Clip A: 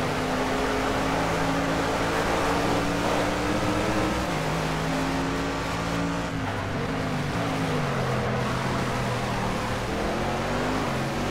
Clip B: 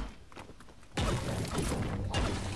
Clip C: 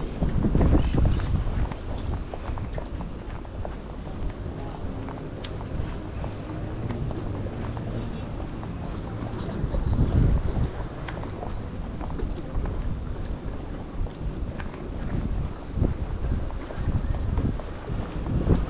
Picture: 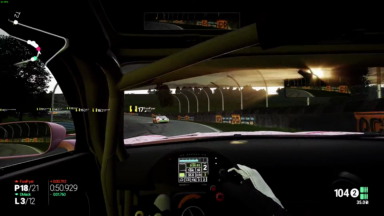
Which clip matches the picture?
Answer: A